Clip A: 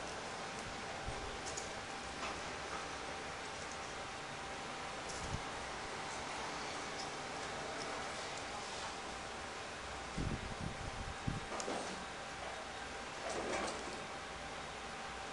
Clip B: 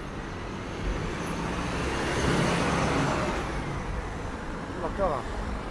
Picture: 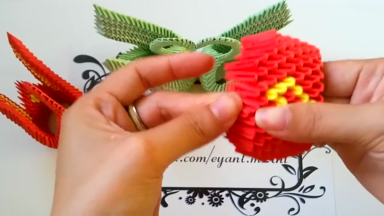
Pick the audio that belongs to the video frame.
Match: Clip A